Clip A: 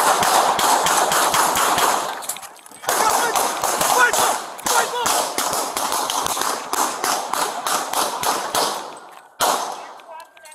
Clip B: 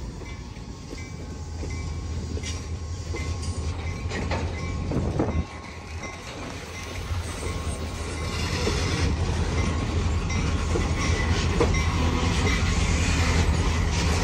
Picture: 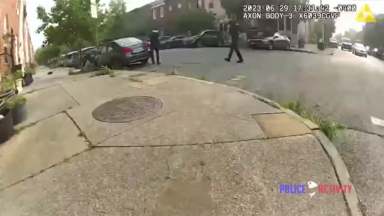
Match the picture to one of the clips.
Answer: A